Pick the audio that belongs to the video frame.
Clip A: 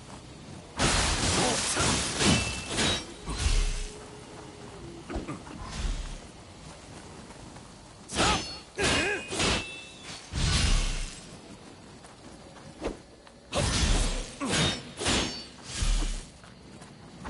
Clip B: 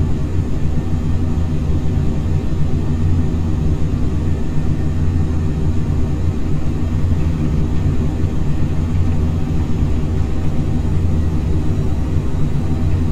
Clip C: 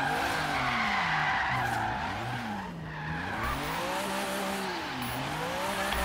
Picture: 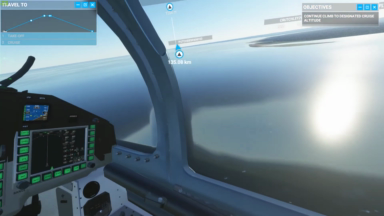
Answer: B